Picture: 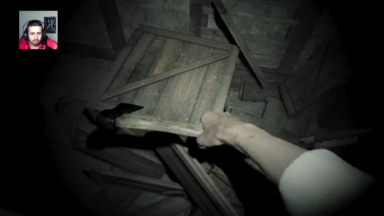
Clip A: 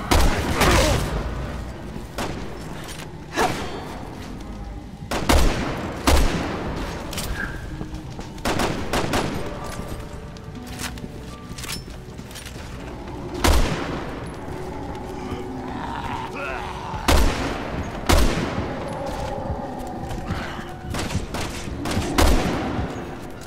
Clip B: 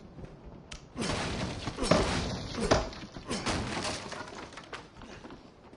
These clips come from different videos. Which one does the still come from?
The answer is B